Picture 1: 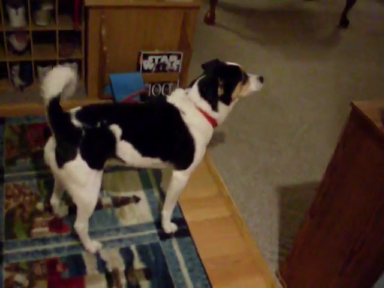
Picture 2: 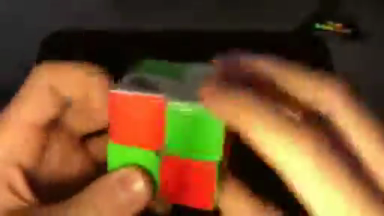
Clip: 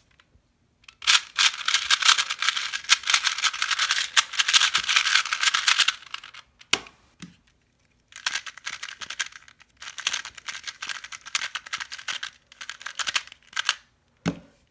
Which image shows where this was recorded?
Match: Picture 2